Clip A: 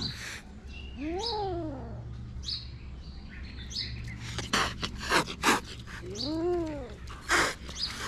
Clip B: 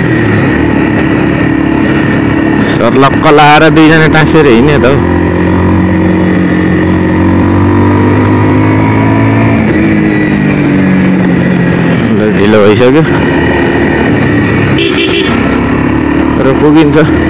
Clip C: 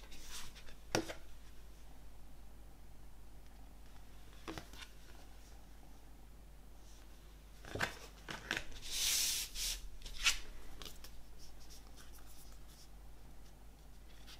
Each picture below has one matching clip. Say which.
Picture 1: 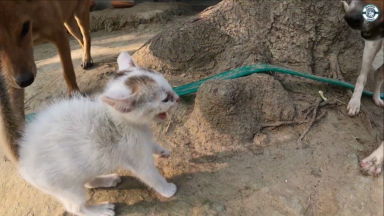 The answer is A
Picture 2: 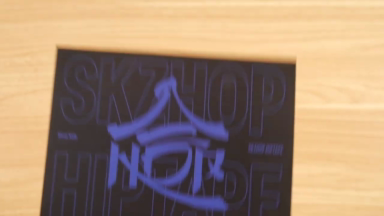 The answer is C